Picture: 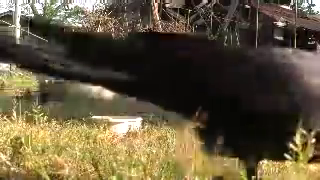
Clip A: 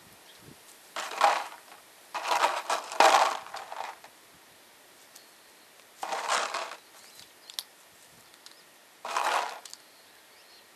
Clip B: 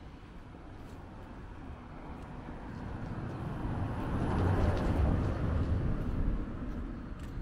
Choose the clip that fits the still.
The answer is A